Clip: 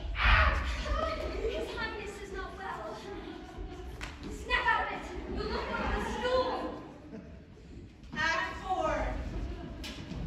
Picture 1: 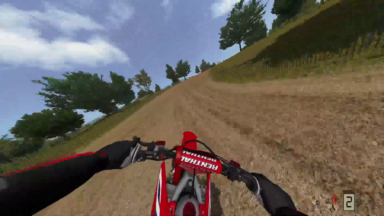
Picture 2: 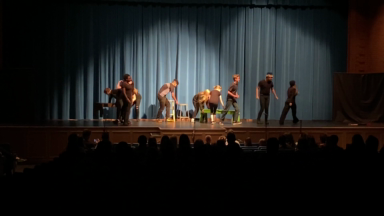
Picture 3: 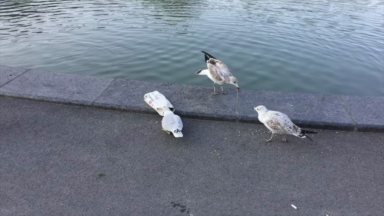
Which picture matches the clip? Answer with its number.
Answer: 2